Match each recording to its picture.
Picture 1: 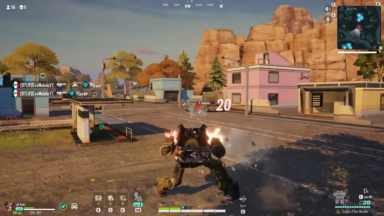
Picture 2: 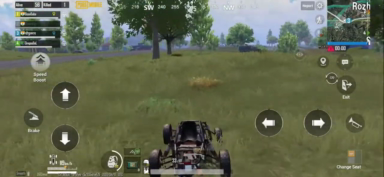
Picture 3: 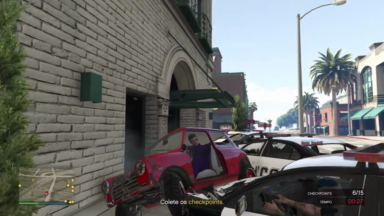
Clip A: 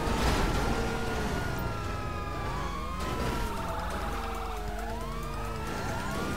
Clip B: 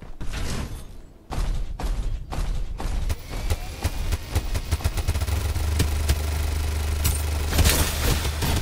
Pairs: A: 3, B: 1